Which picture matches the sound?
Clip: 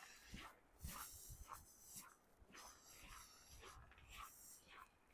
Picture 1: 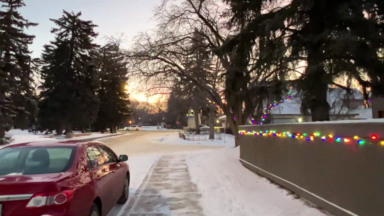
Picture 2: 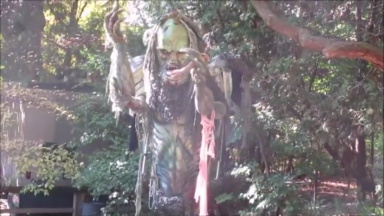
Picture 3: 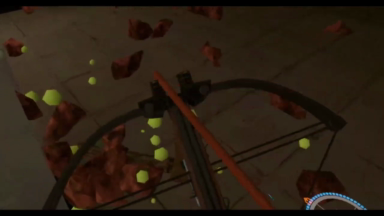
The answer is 1